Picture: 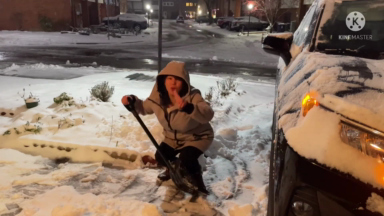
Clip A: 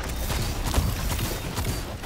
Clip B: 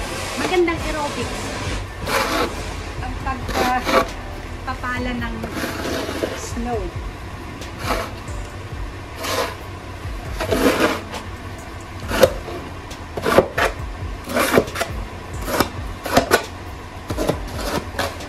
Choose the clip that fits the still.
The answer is B